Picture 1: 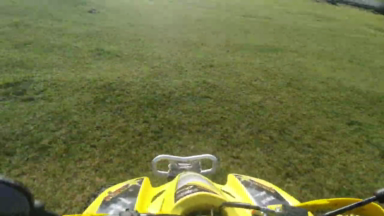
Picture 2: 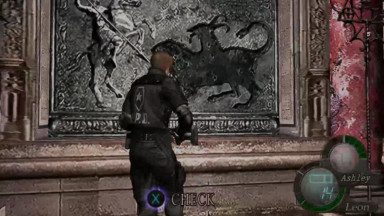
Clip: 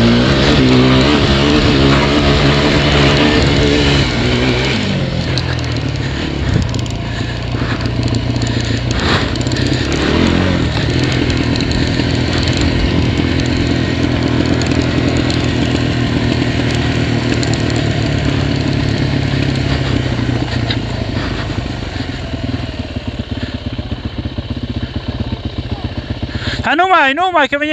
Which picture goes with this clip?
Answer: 1